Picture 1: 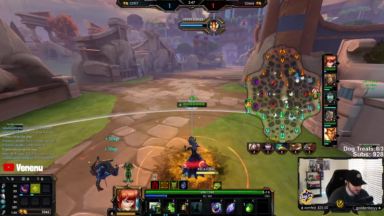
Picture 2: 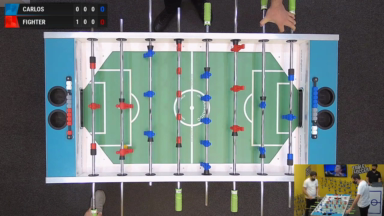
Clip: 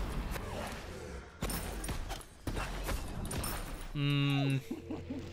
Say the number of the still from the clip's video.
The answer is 1